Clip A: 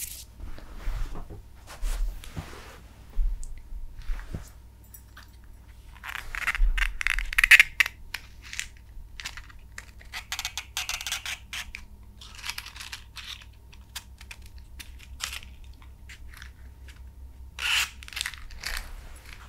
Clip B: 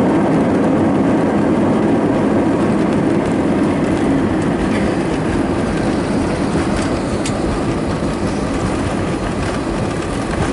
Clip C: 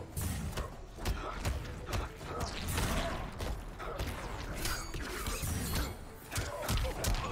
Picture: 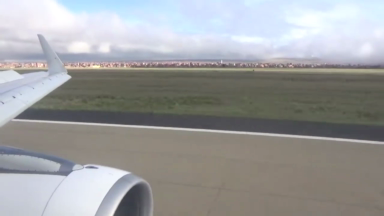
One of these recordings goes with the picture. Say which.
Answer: B